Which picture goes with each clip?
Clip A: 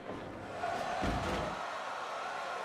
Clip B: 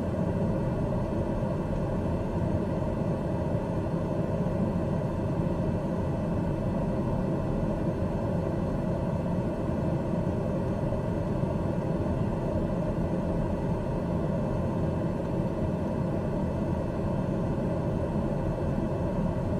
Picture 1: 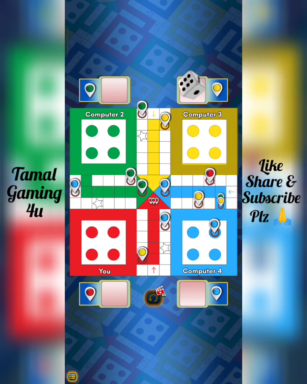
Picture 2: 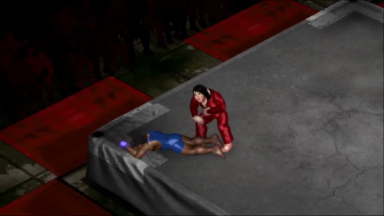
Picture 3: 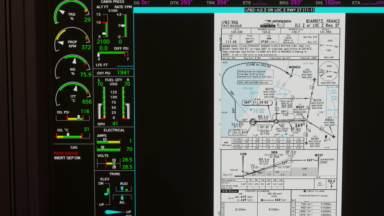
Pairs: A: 2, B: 3